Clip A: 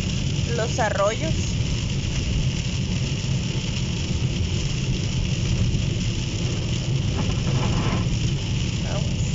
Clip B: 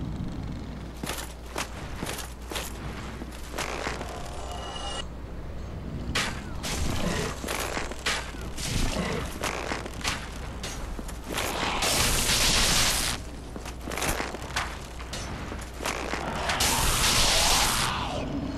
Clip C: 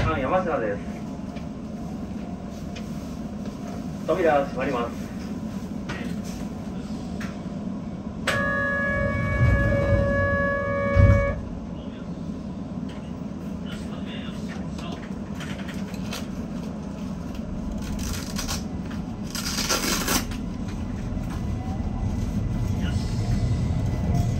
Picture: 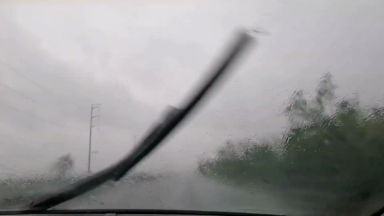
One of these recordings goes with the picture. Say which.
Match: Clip A